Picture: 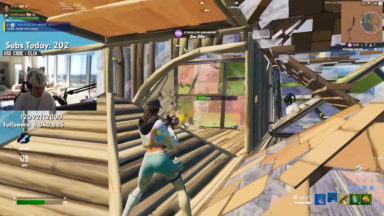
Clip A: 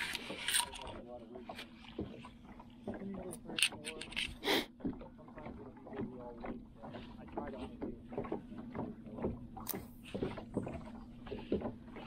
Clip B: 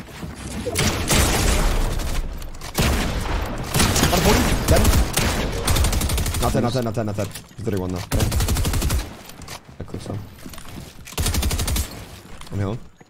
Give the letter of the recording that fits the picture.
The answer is B